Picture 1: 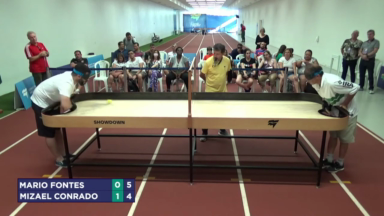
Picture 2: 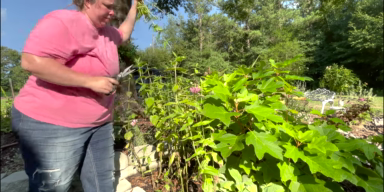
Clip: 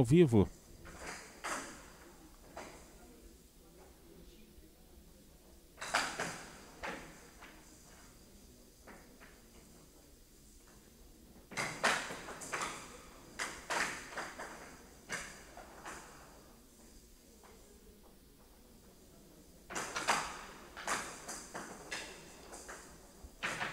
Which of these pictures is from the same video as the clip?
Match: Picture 1